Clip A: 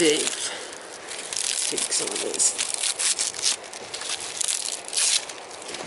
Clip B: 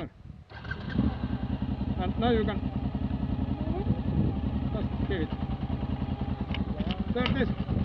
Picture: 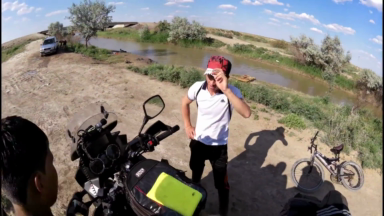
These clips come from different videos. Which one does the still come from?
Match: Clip B